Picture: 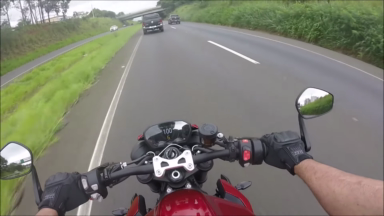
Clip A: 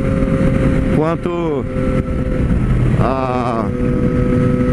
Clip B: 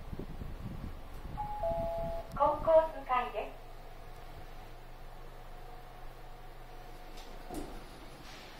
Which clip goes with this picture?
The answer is A